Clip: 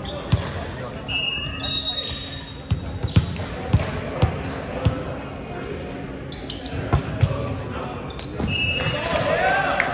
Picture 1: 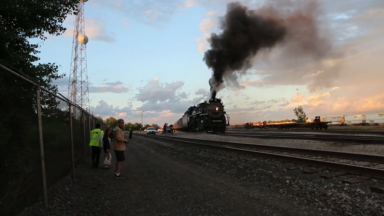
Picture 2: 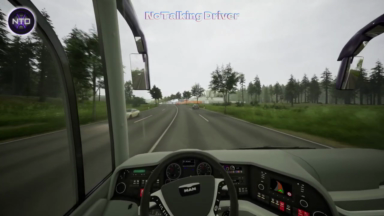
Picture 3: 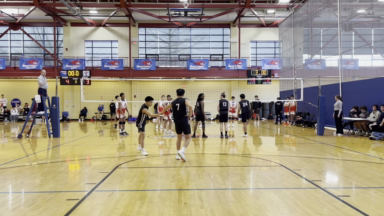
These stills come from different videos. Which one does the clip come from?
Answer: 3